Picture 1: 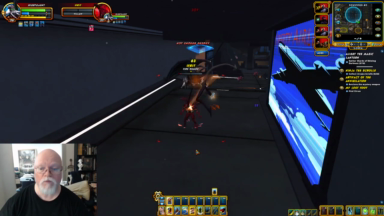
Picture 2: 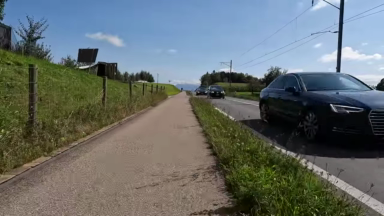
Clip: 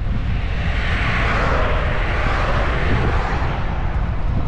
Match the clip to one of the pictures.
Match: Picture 2